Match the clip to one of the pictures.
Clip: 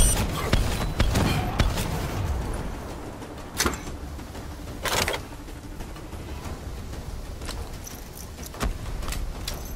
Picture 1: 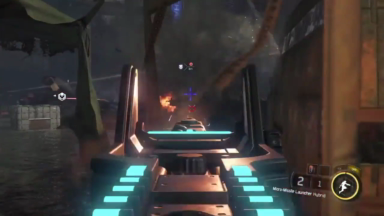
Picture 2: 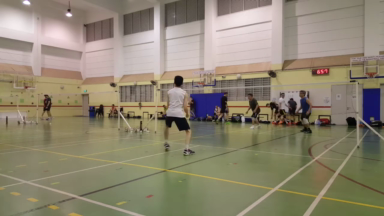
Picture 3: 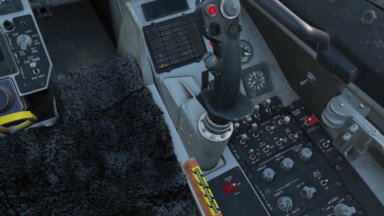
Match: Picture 1